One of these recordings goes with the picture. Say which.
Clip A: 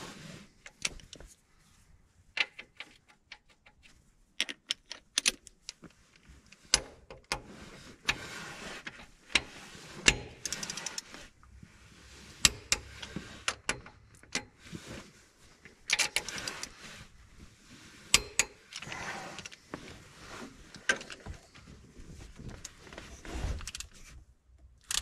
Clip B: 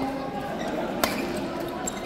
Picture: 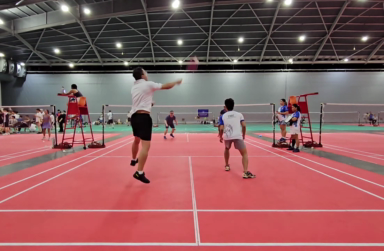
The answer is B